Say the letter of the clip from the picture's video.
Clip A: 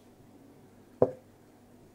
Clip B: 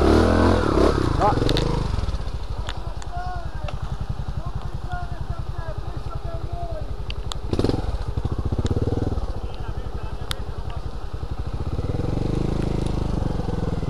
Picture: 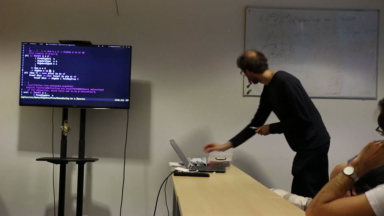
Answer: A